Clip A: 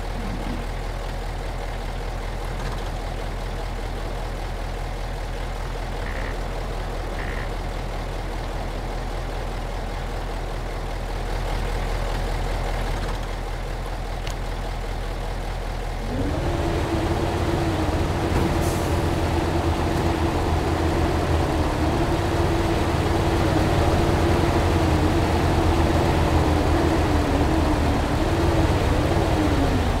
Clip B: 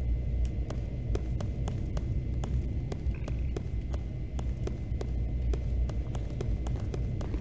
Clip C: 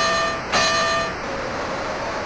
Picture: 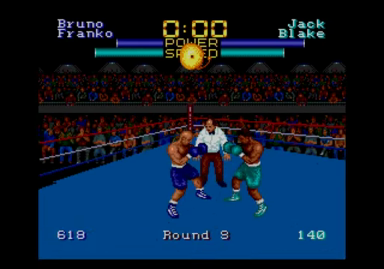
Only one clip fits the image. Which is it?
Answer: C